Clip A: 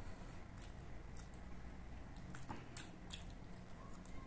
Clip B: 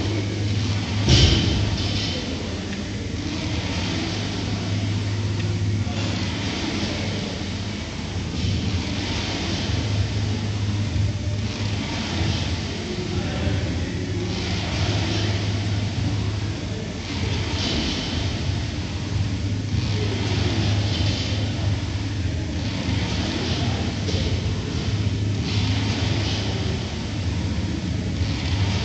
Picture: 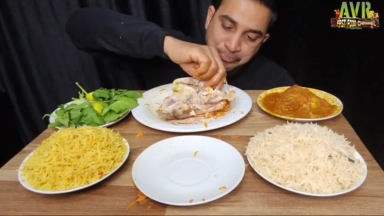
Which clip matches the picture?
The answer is A